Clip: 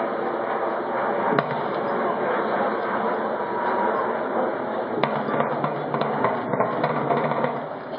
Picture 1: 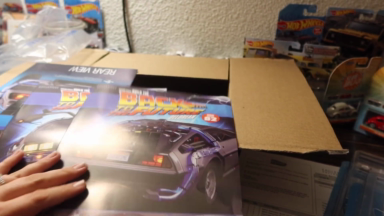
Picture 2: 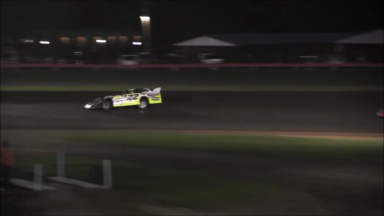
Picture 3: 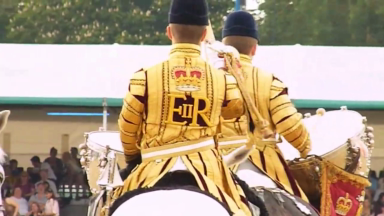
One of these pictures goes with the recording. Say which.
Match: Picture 3